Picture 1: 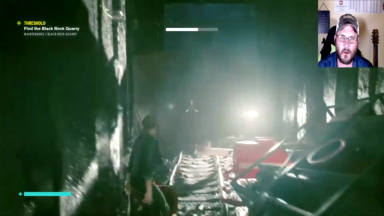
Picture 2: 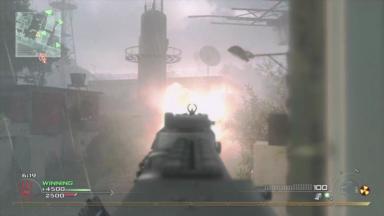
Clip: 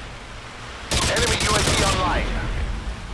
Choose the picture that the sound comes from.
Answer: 2